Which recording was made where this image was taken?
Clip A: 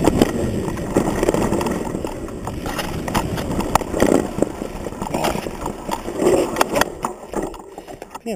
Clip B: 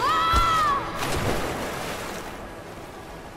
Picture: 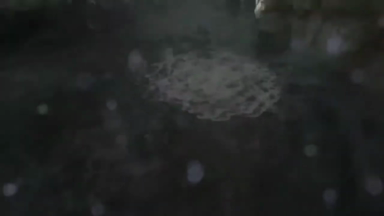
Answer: B